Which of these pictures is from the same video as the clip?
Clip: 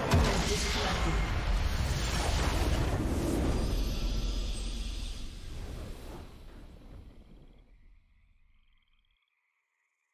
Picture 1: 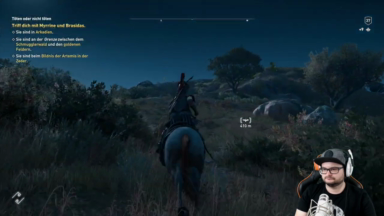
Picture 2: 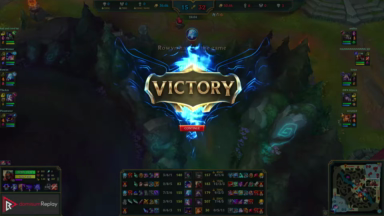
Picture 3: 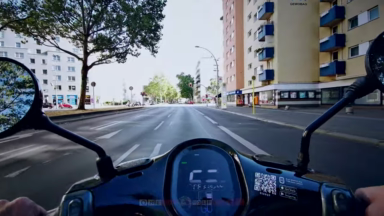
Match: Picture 2